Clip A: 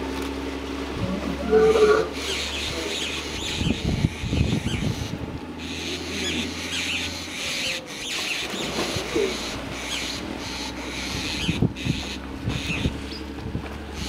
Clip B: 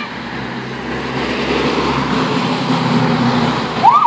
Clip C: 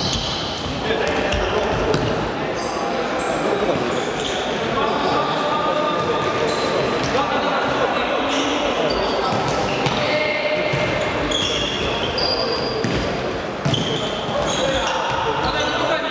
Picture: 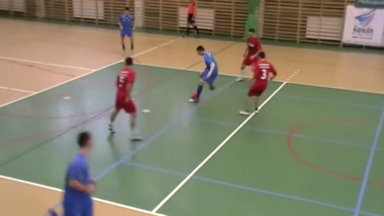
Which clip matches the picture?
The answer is C